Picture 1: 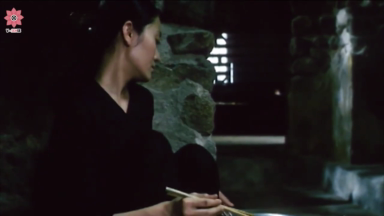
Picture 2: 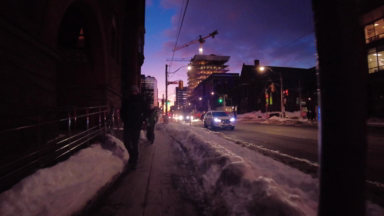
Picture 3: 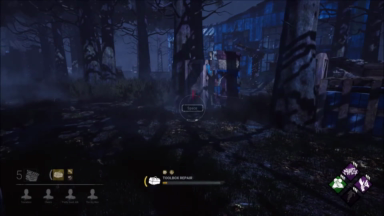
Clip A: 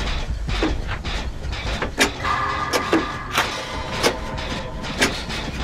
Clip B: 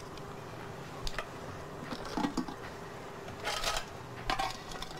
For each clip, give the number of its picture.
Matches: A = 3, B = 1